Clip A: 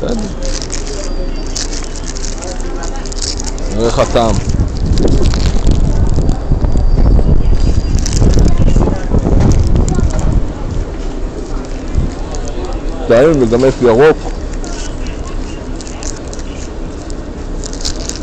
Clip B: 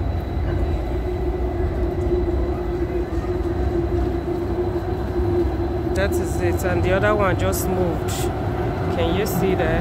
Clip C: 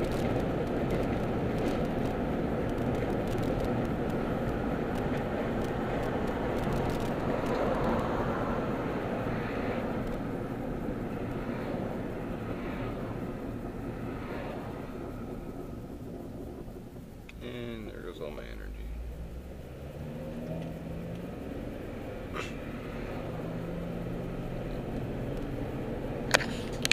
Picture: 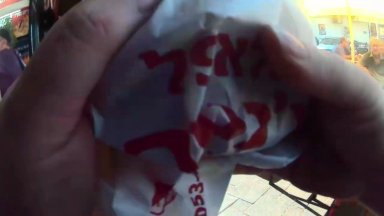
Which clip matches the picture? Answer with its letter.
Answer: A